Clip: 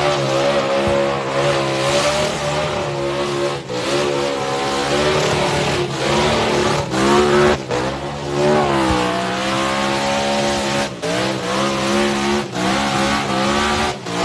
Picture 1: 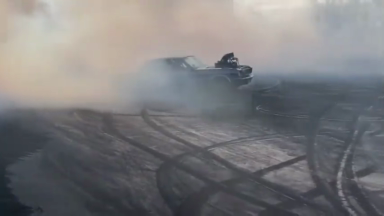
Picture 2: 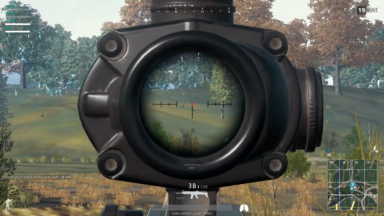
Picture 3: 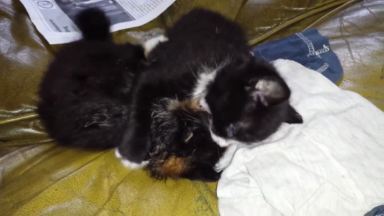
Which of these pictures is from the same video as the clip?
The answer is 1